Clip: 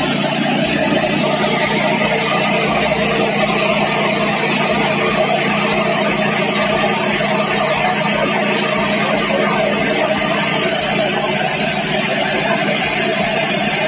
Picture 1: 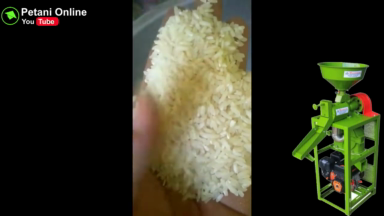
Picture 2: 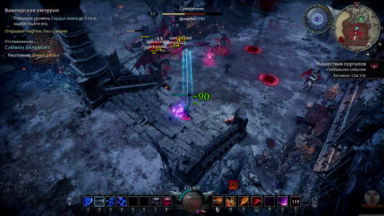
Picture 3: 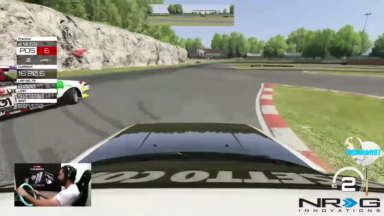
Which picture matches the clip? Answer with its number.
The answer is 1